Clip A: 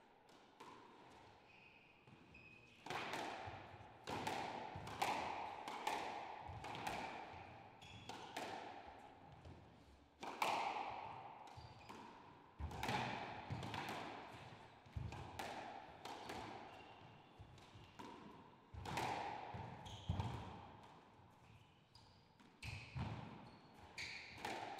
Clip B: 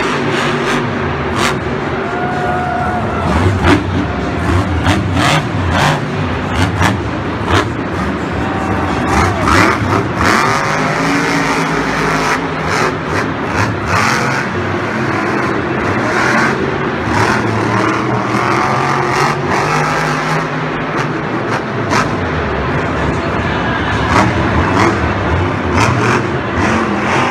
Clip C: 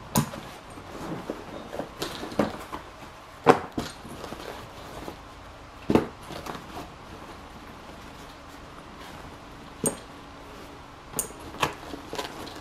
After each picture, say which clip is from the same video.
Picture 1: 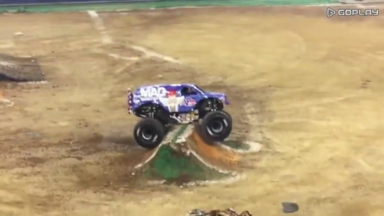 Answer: B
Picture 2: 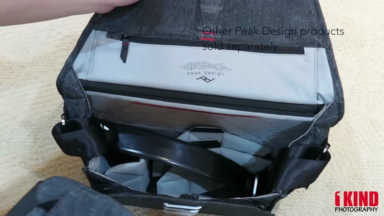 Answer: C